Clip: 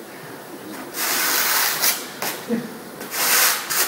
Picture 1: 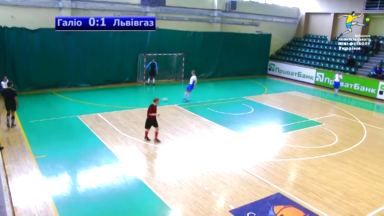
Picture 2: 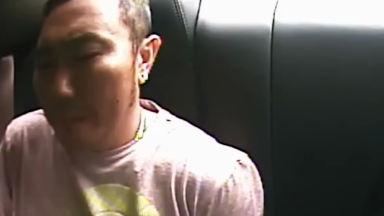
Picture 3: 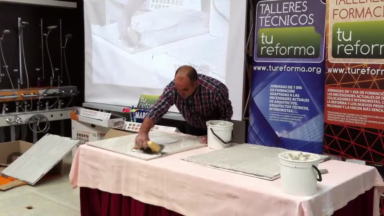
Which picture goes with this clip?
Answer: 3